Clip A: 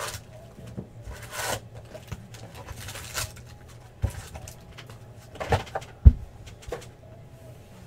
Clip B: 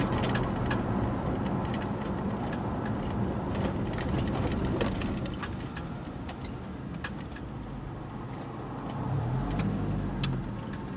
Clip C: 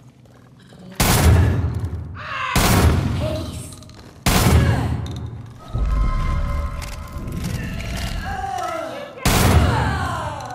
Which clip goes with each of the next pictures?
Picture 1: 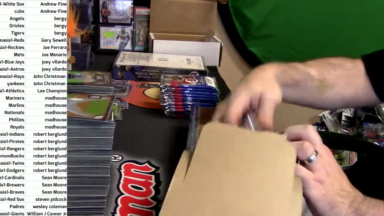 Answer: A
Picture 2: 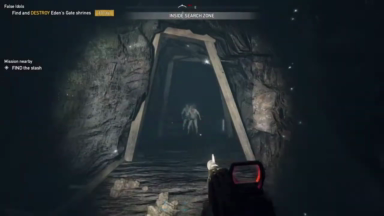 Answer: C